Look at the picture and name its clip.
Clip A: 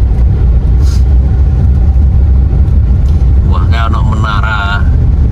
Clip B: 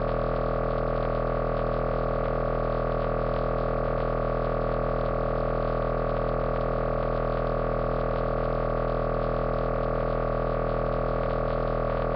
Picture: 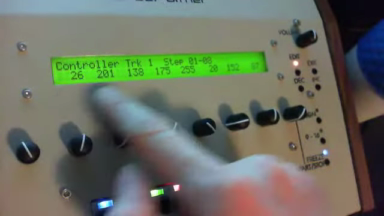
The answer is B